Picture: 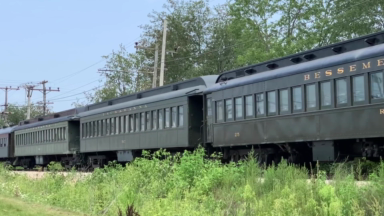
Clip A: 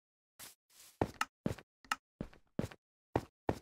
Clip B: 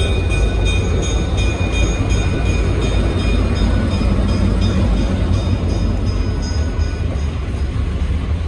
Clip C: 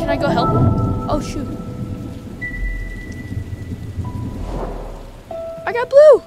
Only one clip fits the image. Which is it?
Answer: B